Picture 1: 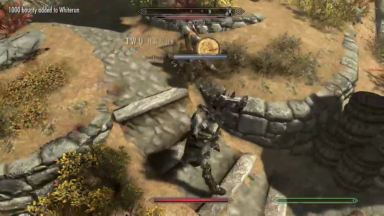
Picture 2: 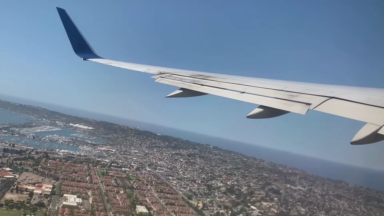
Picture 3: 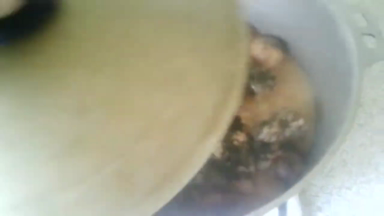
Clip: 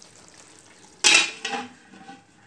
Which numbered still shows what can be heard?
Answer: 3